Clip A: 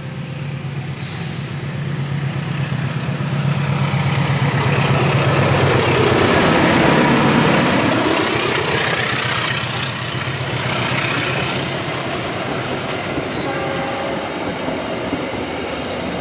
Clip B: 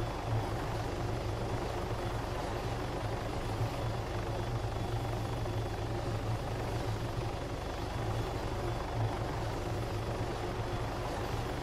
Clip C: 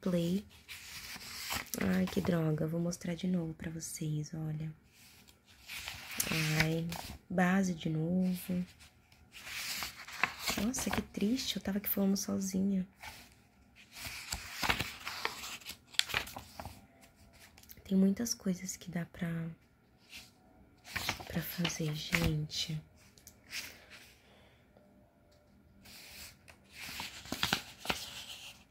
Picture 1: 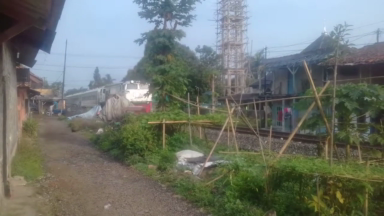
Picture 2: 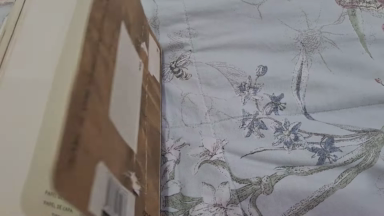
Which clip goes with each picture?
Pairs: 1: A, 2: C